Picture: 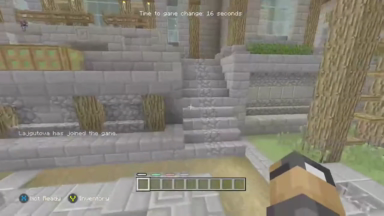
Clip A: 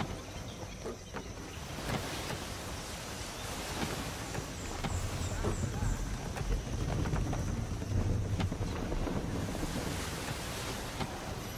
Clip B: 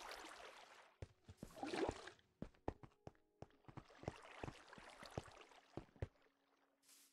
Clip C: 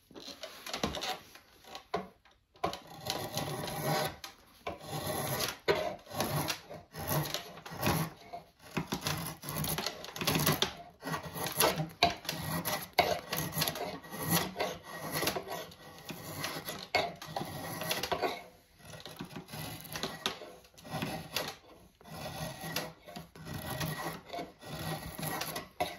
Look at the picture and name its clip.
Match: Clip B